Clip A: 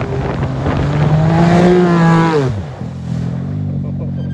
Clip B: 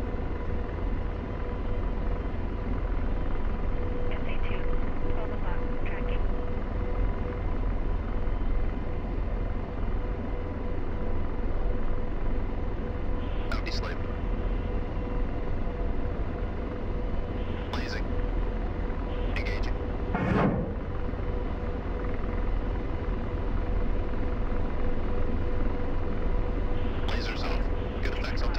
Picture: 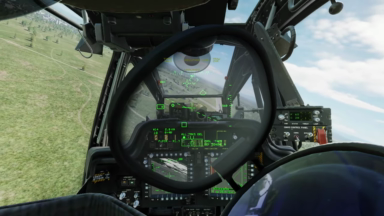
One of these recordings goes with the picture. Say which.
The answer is B